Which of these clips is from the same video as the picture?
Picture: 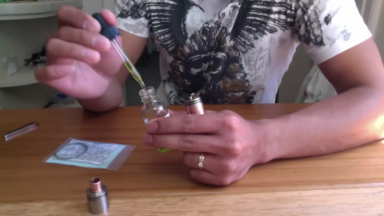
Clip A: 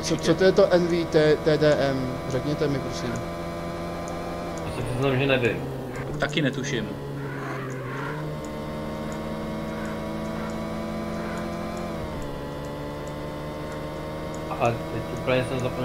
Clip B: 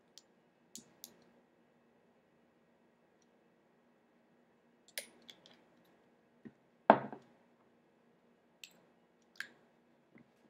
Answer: B